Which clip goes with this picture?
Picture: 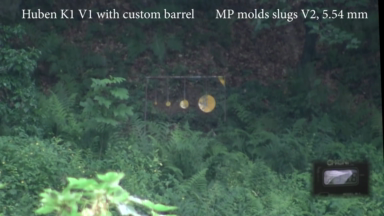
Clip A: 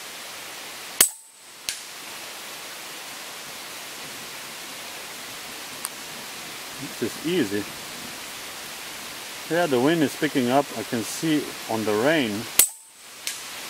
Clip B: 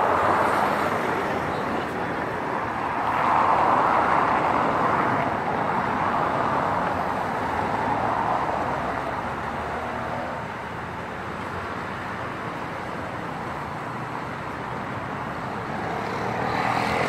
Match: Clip A